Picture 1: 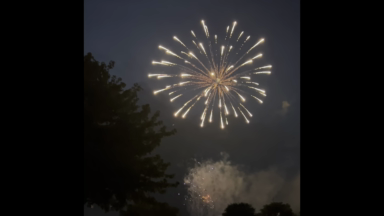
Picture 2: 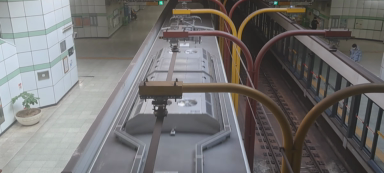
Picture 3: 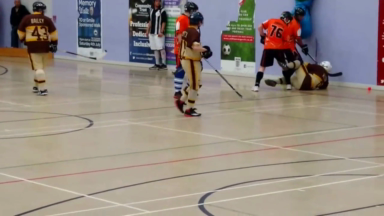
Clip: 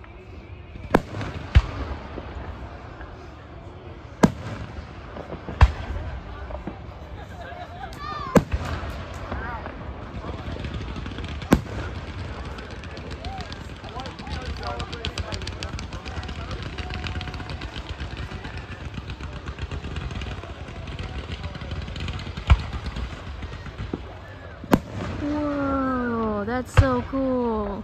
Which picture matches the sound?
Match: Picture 1